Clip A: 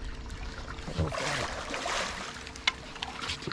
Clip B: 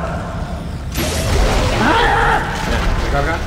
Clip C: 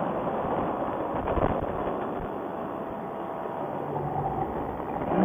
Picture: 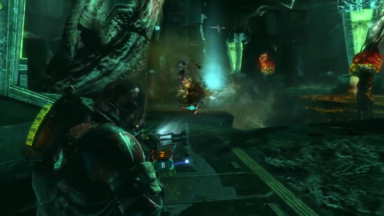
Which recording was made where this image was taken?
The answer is B